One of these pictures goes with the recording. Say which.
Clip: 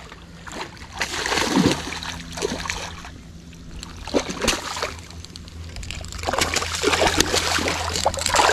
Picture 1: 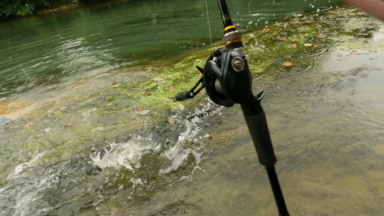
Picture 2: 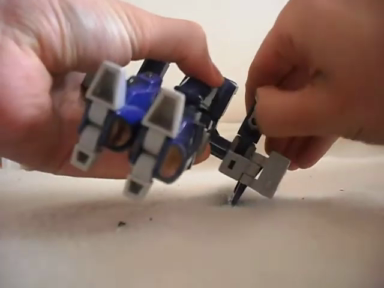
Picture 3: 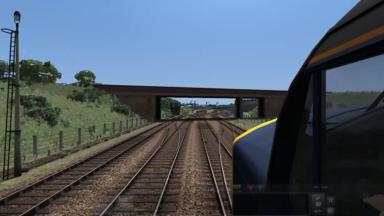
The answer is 1